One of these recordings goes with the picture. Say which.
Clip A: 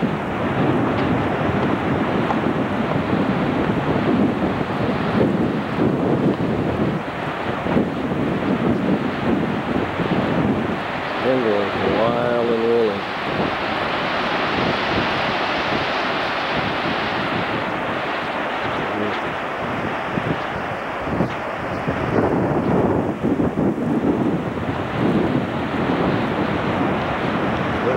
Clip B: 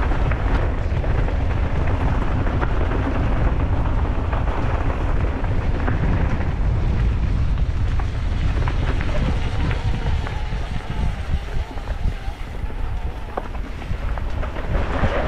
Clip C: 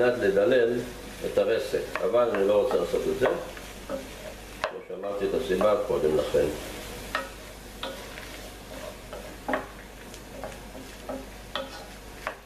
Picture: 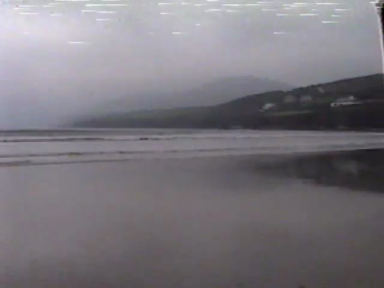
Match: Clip A